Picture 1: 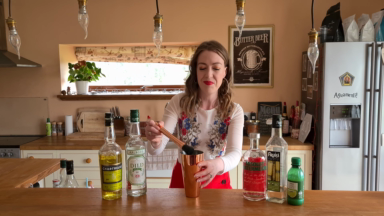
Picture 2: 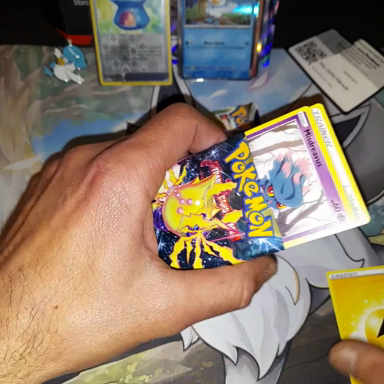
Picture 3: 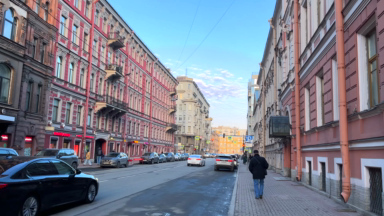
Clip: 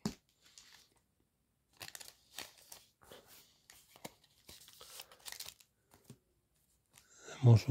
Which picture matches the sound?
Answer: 2